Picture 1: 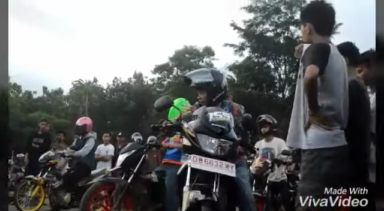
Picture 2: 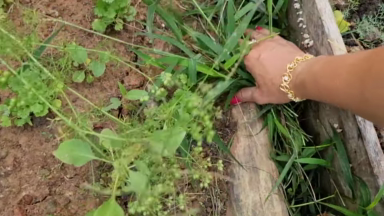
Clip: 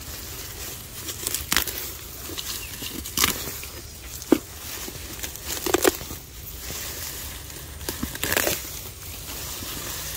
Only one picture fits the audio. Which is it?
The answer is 2